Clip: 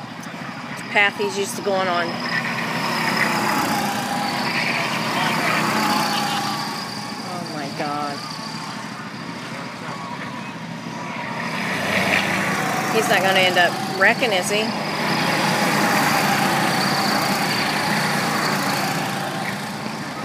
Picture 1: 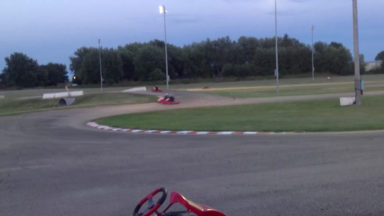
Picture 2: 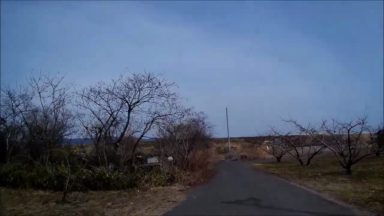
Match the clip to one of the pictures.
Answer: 1